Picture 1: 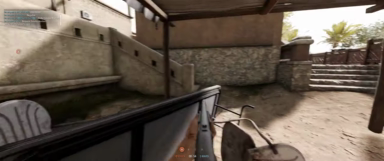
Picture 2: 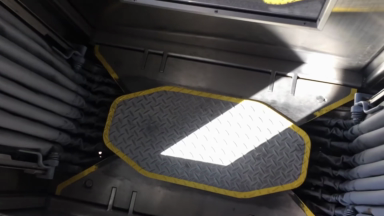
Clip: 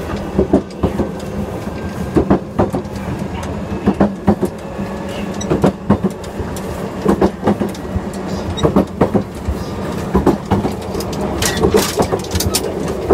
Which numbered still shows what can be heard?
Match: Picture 2